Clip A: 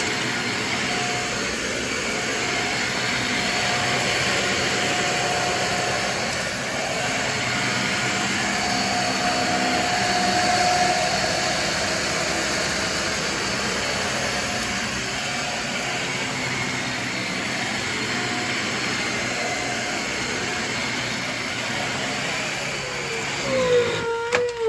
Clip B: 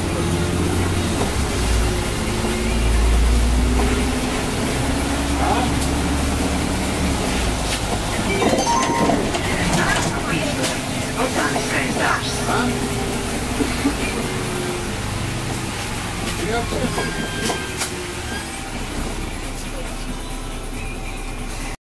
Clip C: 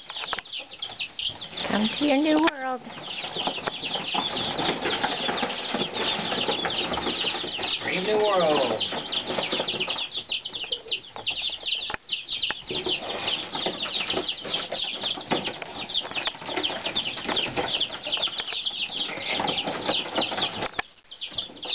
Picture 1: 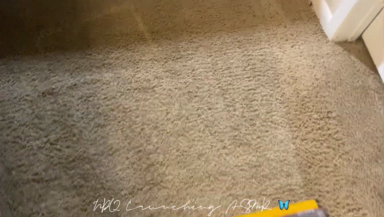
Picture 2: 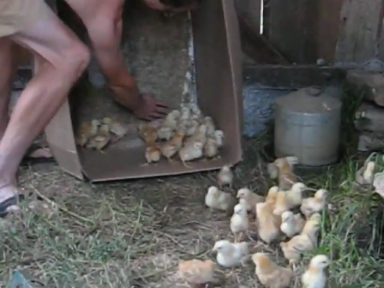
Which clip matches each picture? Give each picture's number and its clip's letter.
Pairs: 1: A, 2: C